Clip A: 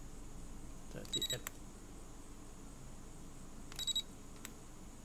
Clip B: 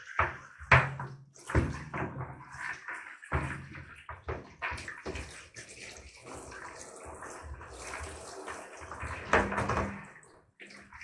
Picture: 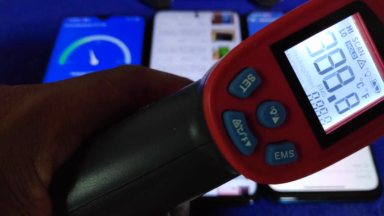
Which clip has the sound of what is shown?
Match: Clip A